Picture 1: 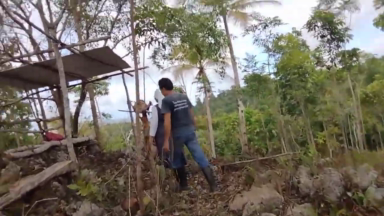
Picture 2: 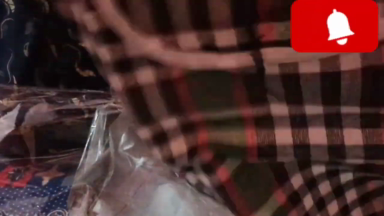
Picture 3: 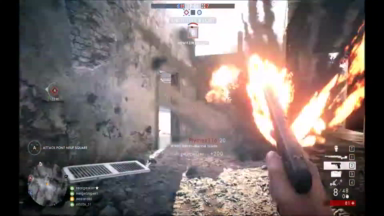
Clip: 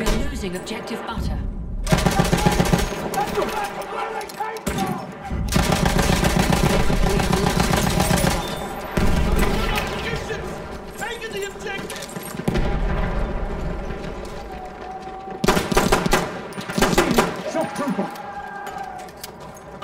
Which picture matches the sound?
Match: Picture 3